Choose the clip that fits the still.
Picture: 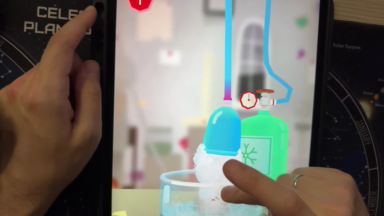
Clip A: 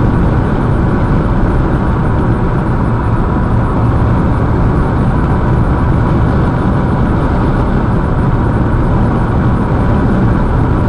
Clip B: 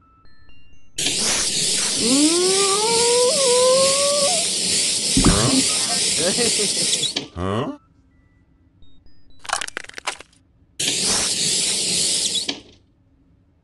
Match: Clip B